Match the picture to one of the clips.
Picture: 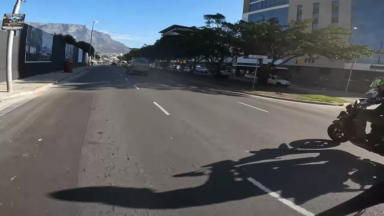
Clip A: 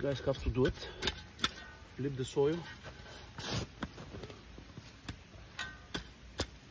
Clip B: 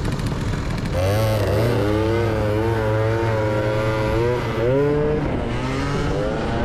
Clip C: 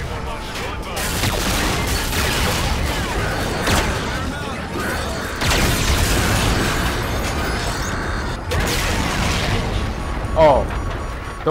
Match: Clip B